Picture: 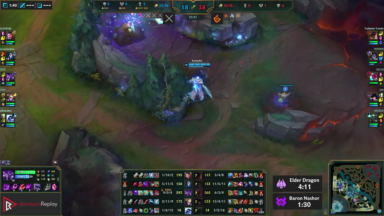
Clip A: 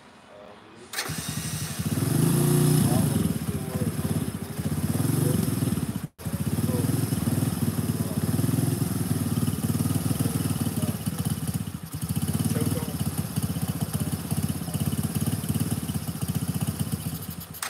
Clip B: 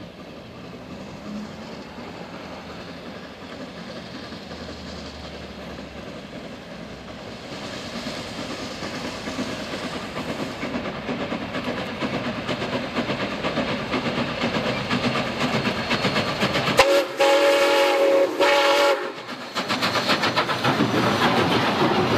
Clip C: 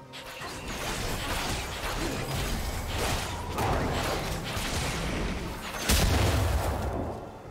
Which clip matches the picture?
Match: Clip C